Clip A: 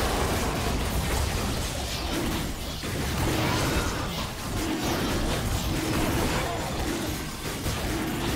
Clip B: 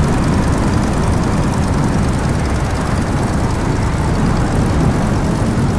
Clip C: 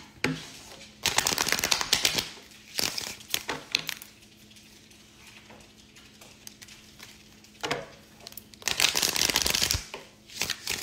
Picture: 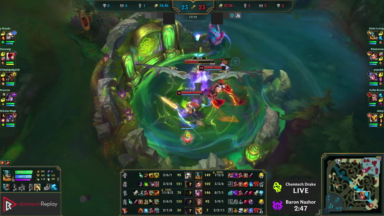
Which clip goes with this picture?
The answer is A